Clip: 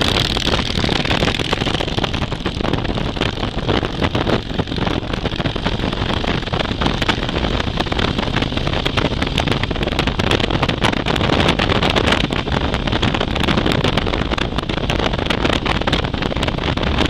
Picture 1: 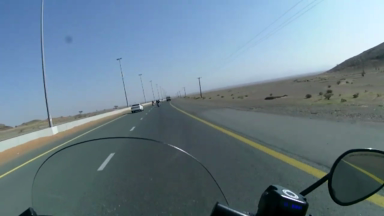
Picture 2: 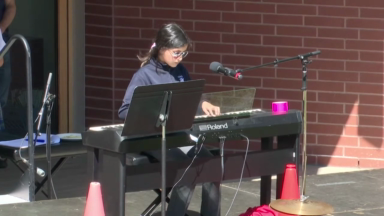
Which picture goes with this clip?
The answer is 1